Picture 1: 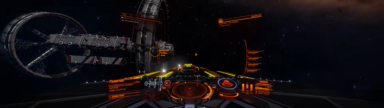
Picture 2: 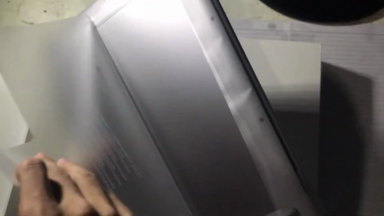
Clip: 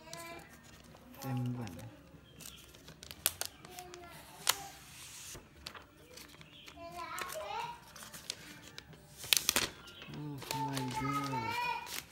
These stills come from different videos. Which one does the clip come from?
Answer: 2